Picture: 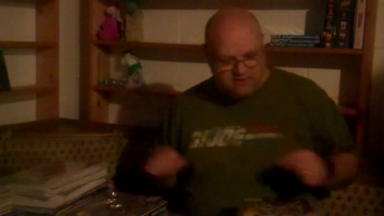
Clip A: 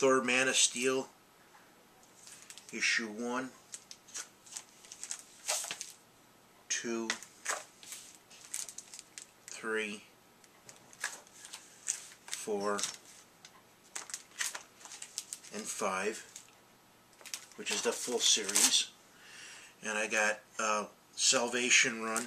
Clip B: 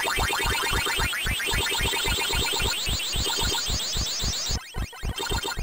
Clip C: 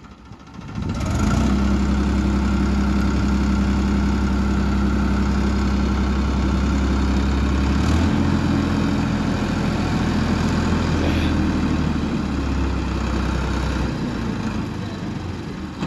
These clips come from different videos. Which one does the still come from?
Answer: A